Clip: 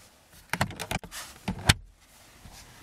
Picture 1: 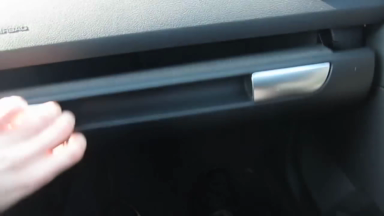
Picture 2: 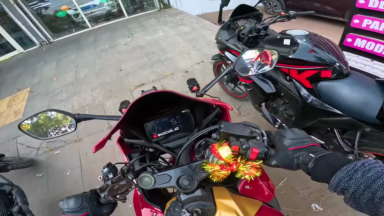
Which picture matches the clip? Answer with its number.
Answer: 1